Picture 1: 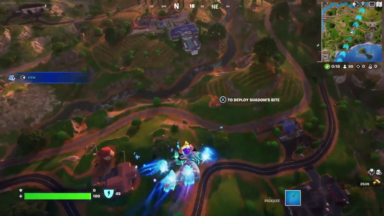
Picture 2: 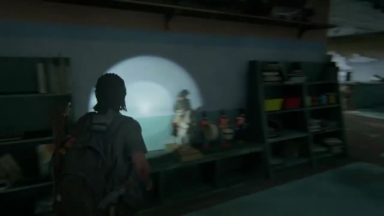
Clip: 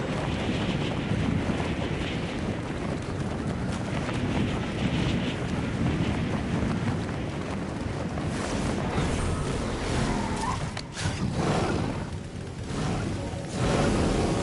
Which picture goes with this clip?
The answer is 1